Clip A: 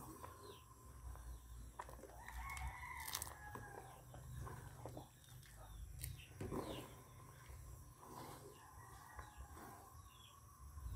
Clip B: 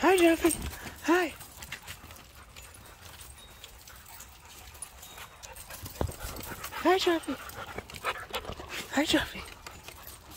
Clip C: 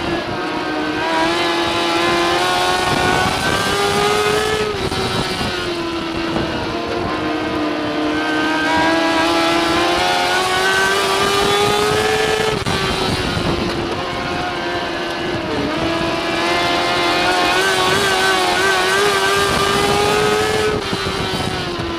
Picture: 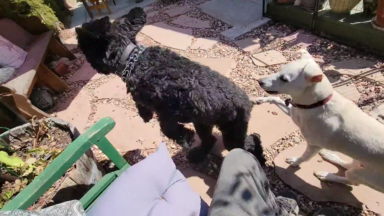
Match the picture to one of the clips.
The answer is B